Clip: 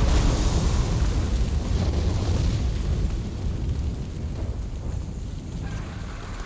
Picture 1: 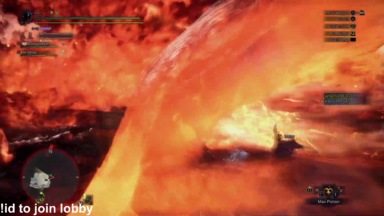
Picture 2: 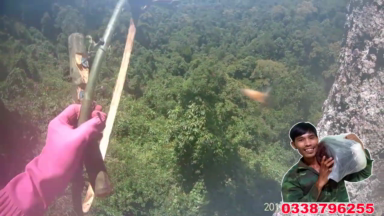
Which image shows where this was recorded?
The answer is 1